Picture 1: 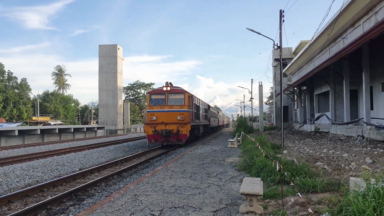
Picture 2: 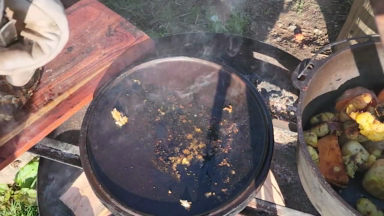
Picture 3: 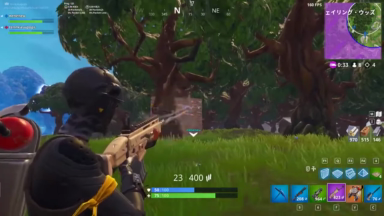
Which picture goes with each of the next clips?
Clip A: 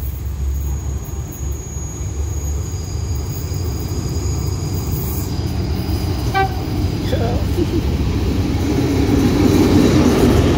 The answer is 1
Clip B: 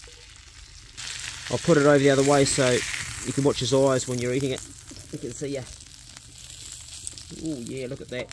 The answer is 2